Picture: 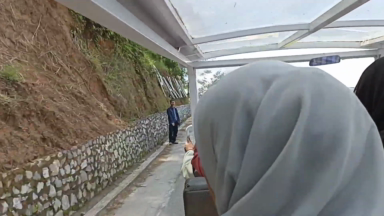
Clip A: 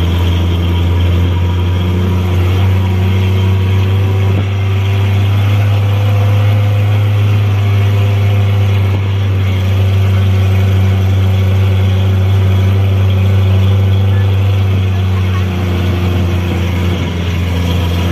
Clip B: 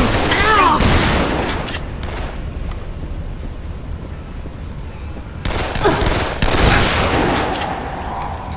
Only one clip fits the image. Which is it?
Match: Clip A